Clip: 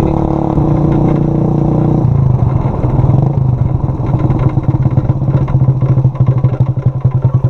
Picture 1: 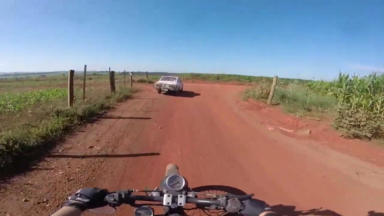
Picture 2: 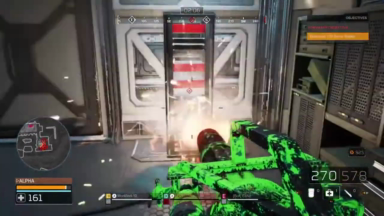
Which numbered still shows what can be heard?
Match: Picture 1